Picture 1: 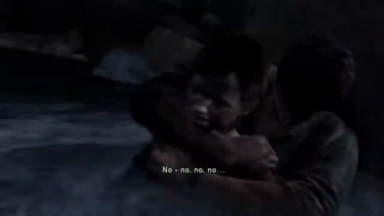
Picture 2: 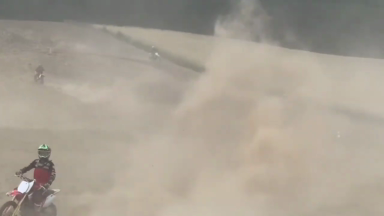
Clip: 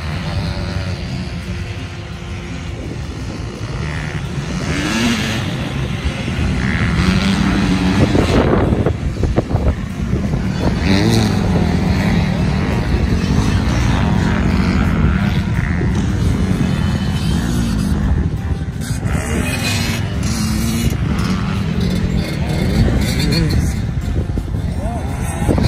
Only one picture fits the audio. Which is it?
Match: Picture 2